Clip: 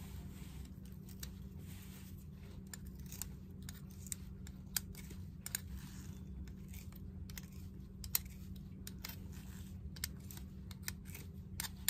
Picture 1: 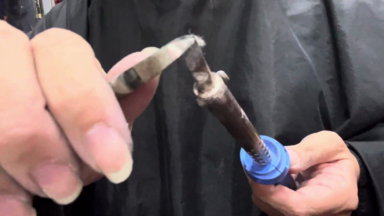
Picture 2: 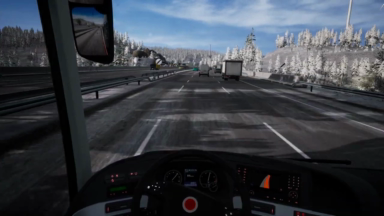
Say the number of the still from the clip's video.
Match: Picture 1